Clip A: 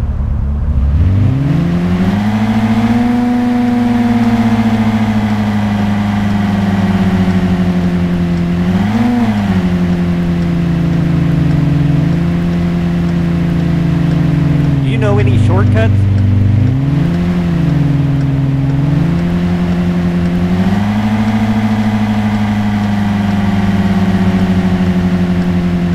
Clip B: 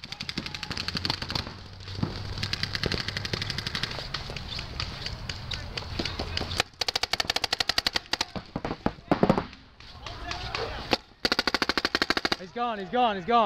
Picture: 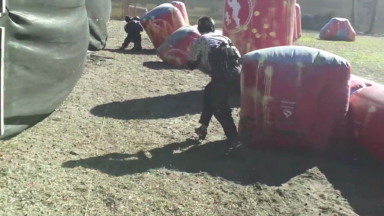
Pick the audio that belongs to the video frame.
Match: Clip B